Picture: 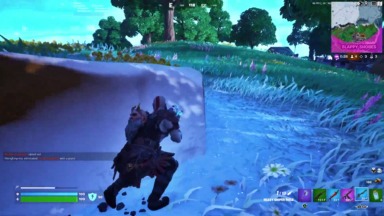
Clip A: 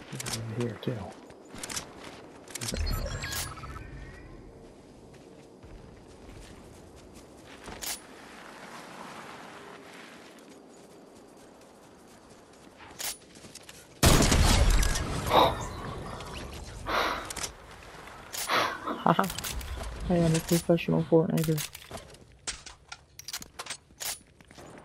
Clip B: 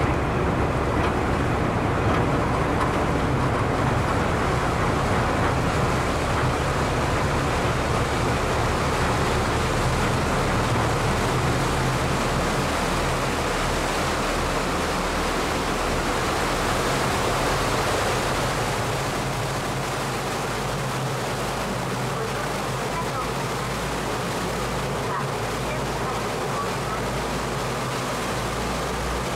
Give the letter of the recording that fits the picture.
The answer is A